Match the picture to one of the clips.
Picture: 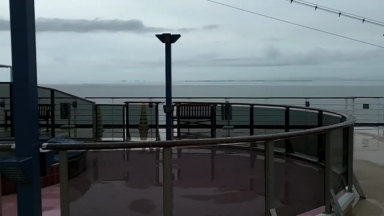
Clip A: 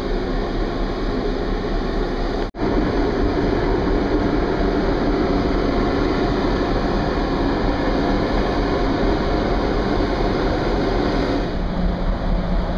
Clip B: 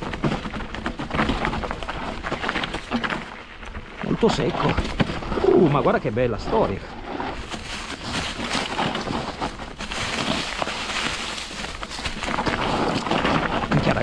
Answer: A